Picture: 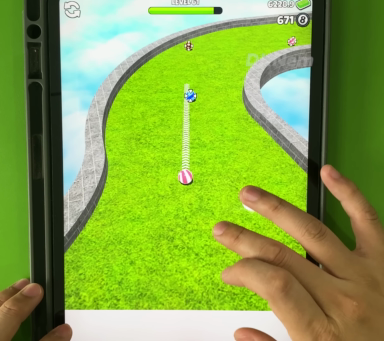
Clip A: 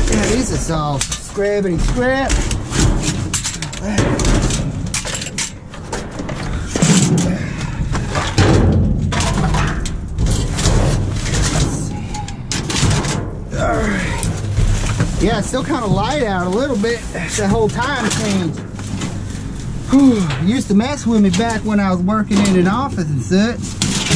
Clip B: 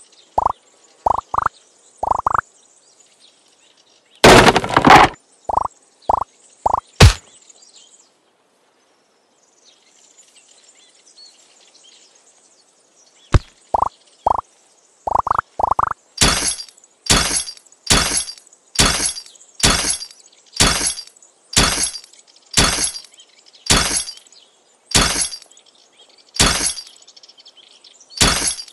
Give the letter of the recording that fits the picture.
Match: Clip B